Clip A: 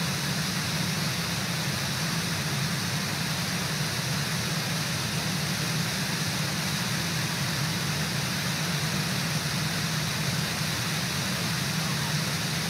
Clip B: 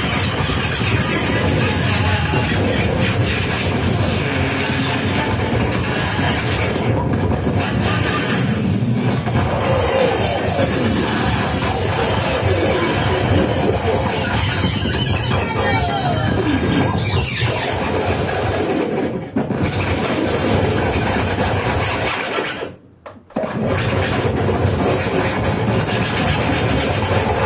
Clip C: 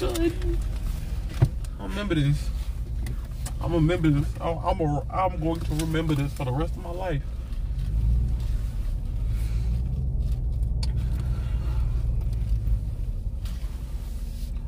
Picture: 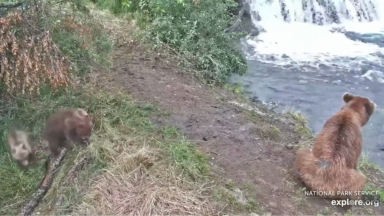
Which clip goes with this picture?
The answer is A